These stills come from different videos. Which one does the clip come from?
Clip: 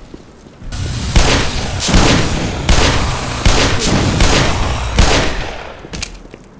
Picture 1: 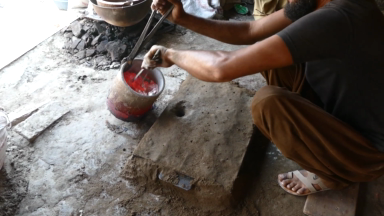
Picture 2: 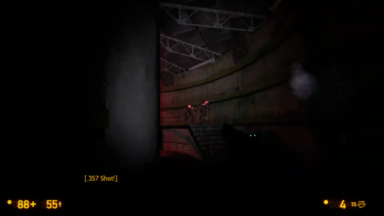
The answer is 2